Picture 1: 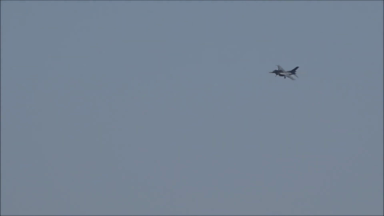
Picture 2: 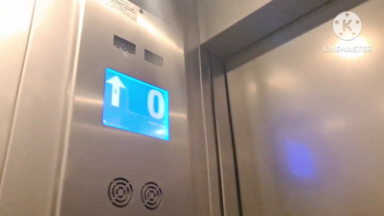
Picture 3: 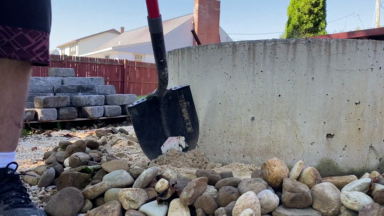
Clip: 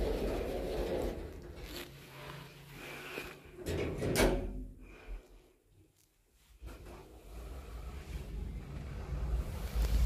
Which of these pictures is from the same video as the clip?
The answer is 2